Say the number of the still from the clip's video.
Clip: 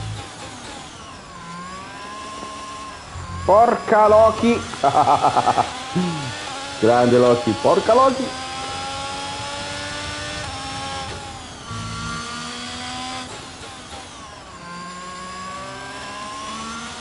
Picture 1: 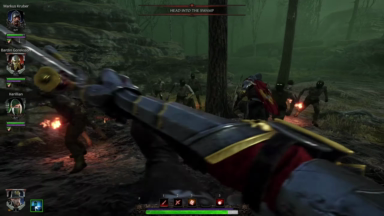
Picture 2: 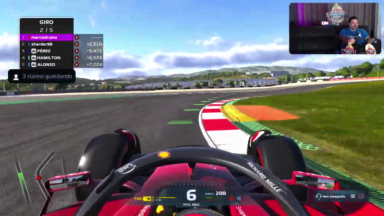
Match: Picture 2